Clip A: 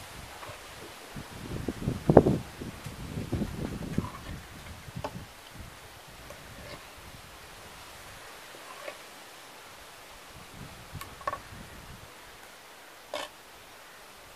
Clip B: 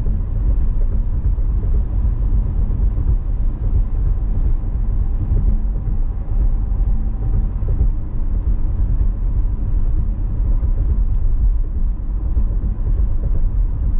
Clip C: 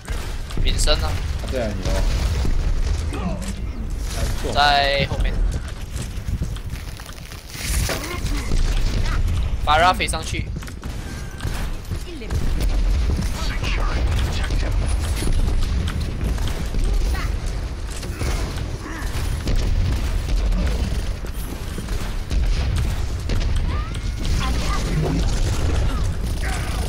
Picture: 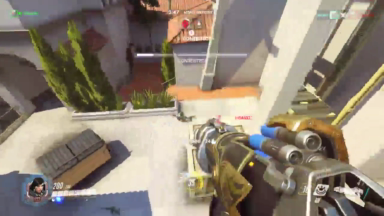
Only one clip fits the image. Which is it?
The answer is C